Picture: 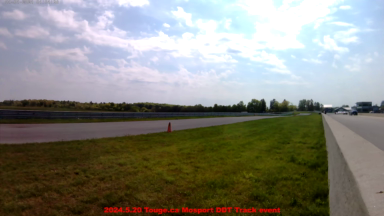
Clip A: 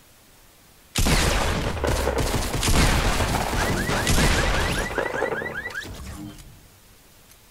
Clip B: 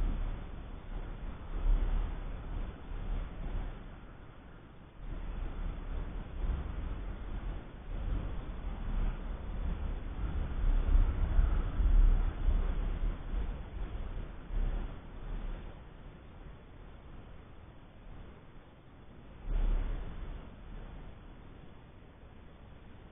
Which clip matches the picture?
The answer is B